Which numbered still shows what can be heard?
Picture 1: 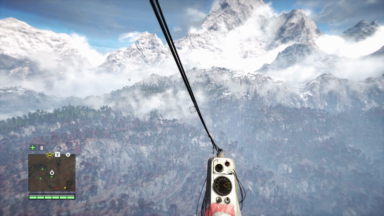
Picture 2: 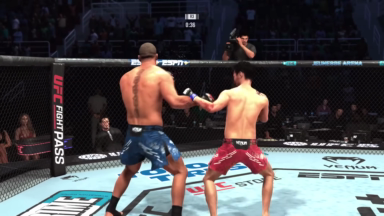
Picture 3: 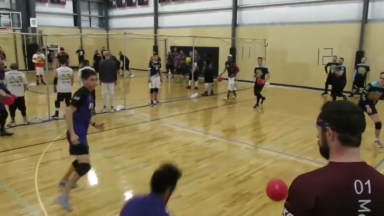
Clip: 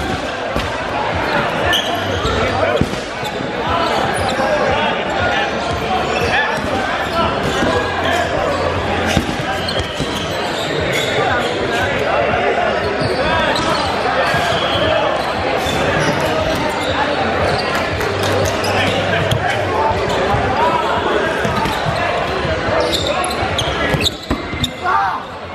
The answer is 3